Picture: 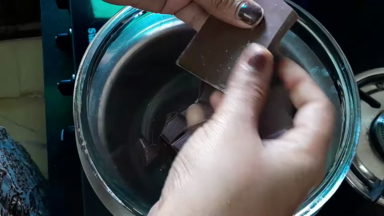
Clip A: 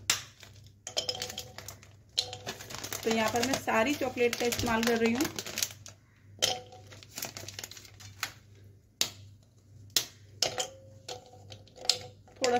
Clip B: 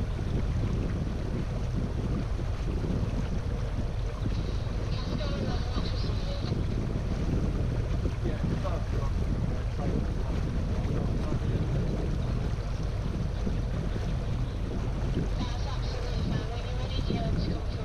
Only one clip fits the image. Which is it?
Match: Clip A